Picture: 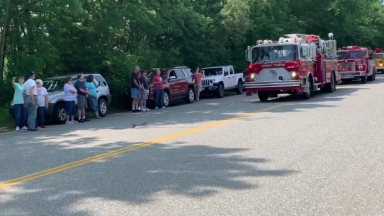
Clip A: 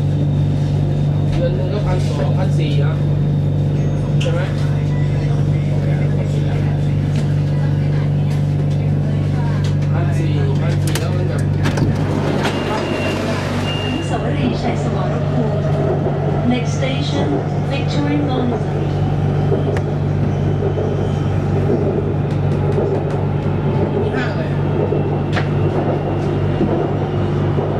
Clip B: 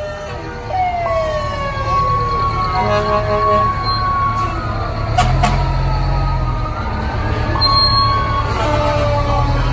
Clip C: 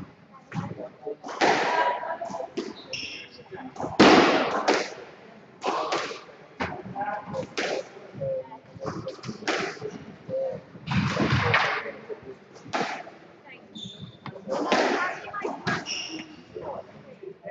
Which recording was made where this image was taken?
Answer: B